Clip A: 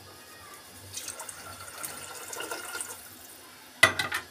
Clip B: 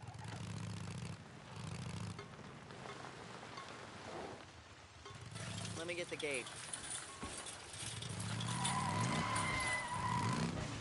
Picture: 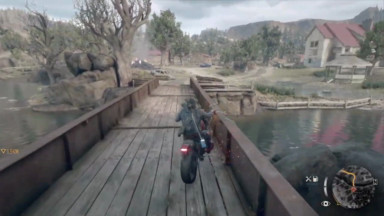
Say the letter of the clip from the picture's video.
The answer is B